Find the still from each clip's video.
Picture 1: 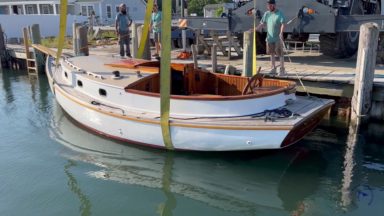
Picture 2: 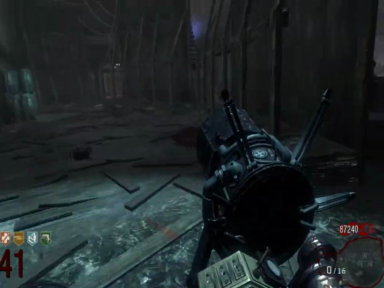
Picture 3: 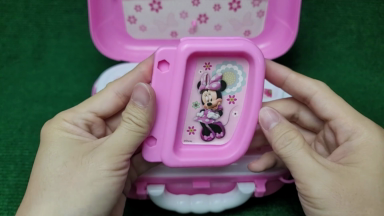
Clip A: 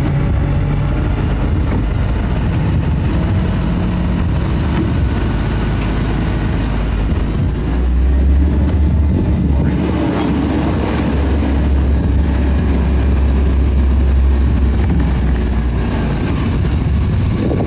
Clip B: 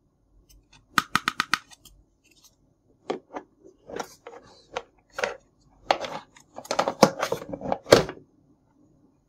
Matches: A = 1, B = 3